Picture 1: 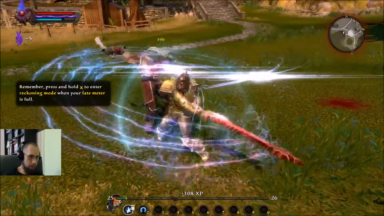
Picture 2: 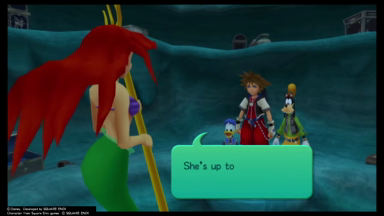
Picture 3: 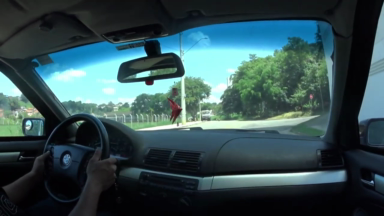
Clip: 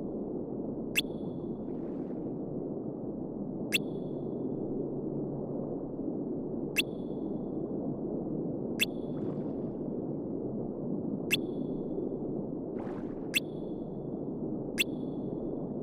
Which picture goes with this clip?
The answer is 2